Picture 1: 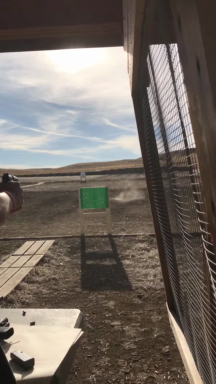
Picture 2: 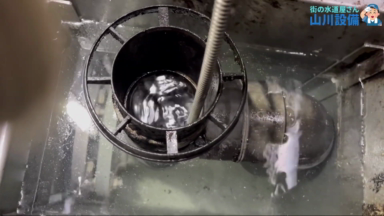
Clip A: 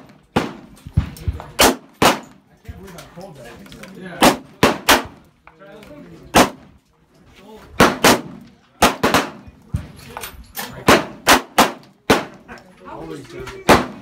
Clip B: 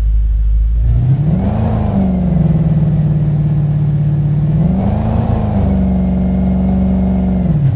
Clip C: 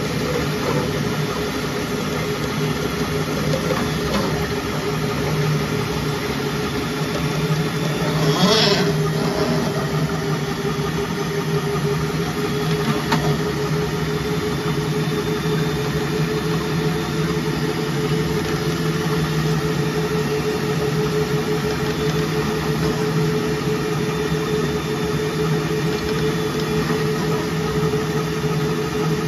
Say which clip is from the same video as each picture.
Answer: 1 A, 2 C